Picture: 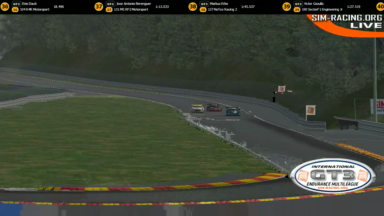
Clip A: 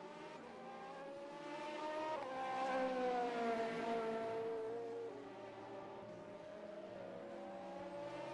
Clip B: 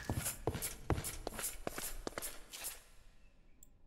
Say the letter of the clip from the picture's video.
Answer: A